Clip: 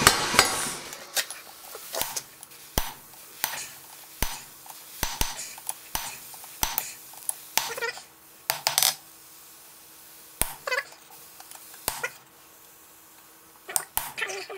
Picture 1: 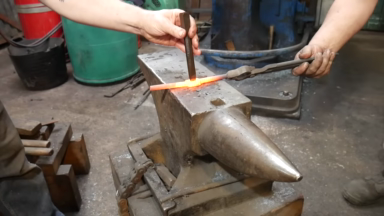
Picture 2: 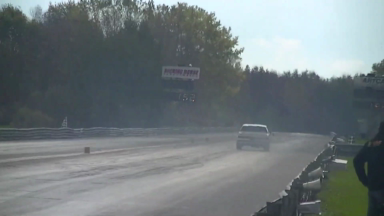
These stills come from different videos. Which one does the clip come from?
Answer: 1